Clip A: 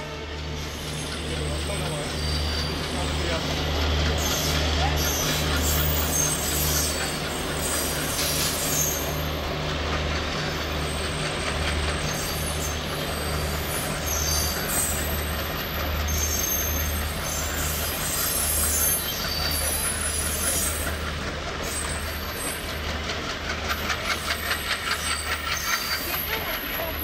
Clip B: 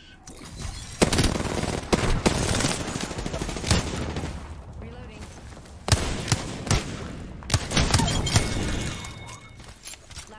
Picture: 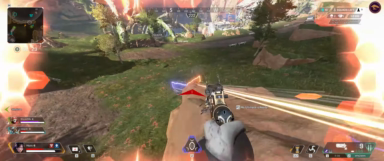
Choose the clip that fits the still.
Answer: B